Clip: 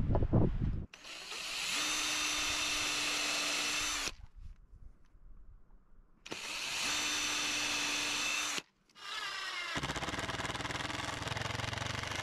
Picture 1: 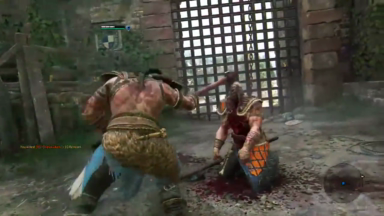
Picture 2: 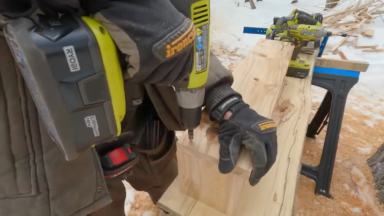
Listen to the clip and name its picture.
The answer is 2